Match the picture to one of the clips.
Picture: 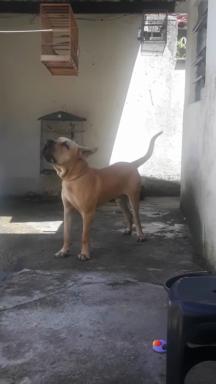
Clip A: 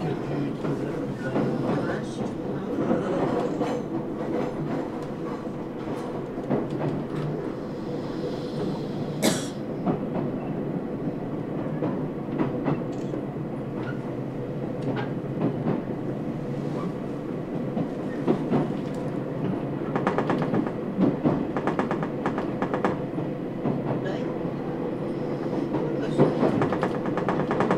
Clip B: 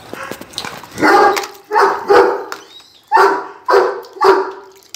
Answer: B